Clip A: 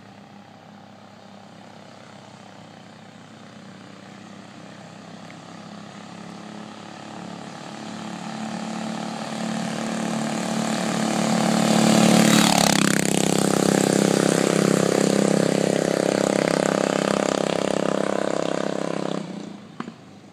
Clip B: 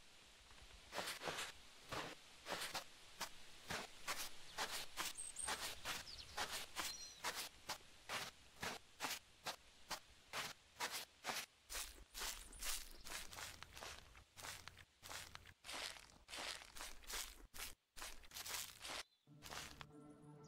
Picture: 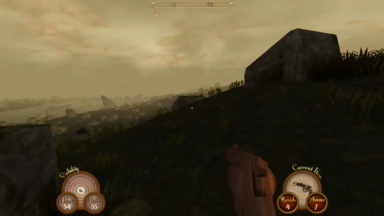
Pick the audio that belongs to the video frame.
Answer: B